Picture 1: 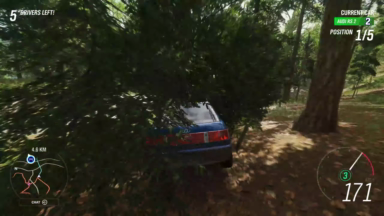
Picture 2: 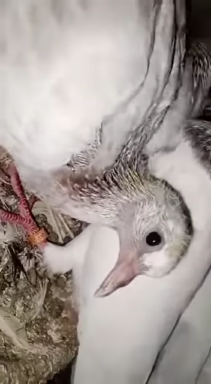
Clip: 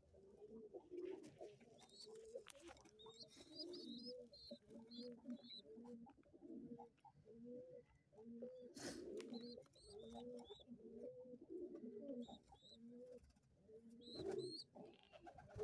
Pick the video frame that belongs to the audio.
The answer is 2